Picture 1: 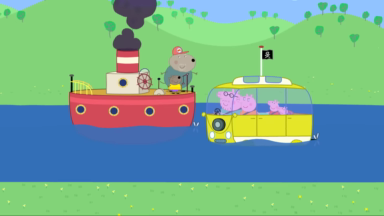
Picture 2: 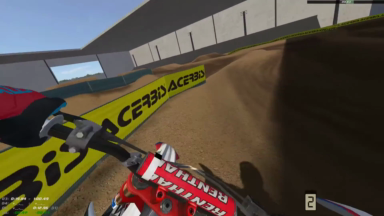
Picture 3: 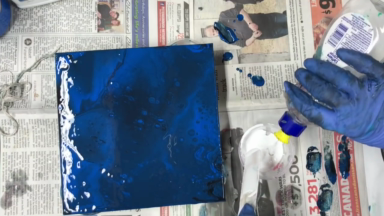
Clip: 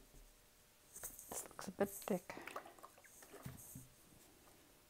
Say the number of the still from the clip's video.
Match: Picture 3